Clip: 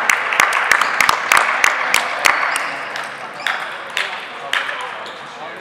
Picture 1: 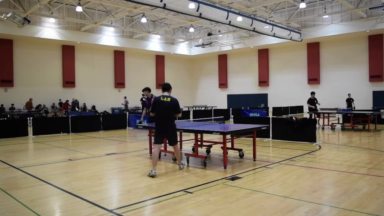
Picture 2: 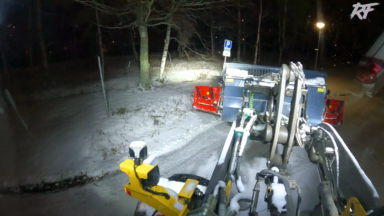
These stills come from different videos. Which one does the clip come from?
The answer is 1